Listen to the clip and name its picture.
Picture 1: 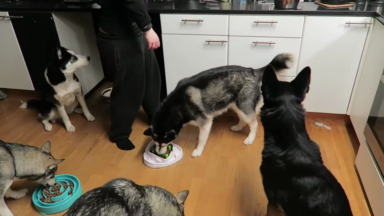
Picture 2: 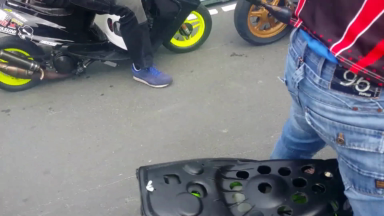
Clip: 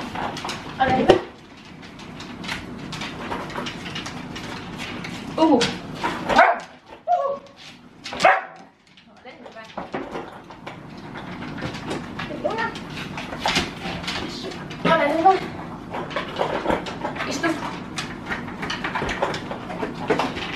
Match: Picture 1